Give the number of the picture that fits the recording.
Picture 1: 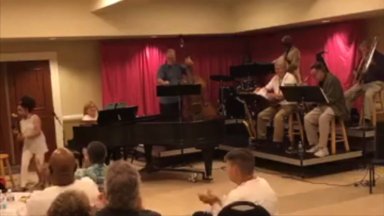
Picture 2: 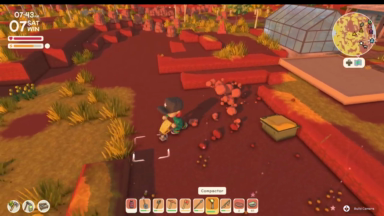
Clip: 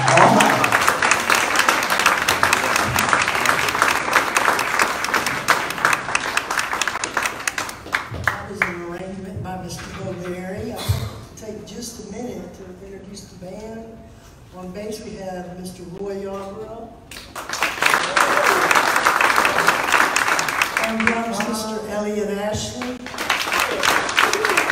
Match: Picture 1